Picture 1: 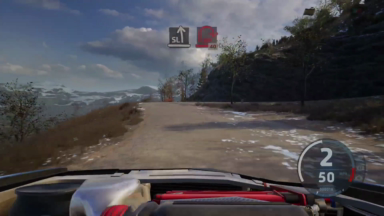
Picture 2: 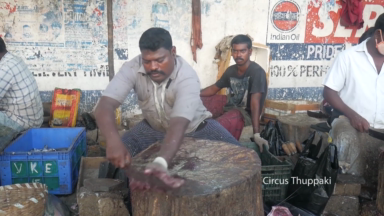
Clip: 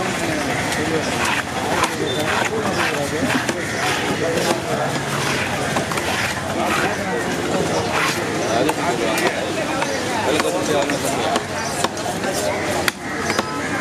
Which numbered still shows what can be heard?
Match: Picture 2